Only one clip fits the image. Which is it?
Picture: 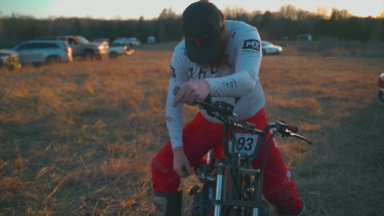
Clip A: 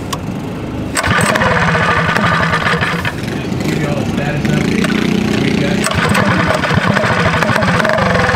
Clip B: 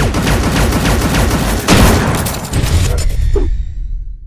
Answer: A